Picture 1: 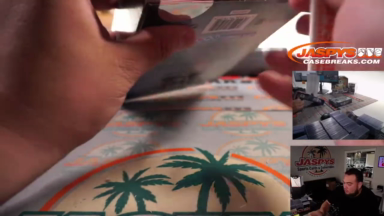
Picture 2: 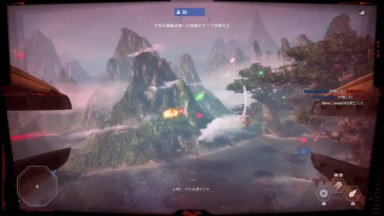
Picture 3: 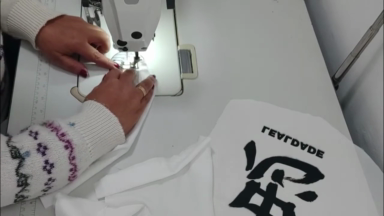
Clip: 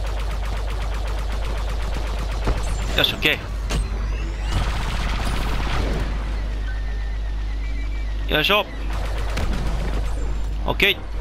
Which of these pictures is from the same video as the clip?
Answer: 2